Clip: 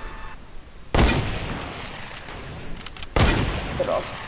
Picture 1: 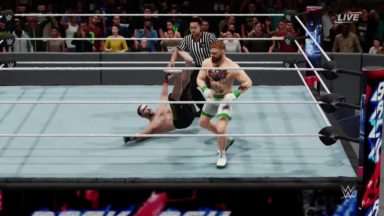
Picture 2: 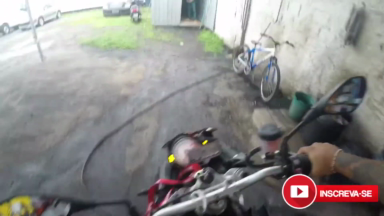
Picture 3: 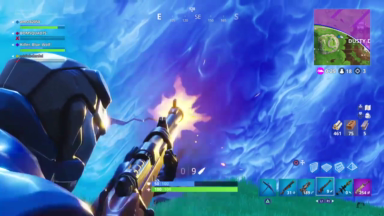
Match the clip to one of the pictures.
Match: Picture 3